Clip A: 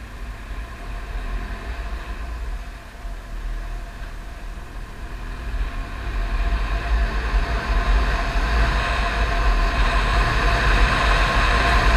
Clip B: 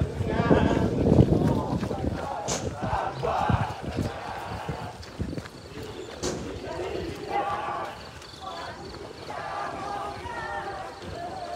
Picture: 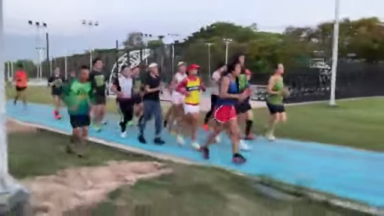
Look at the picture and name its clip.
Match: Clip B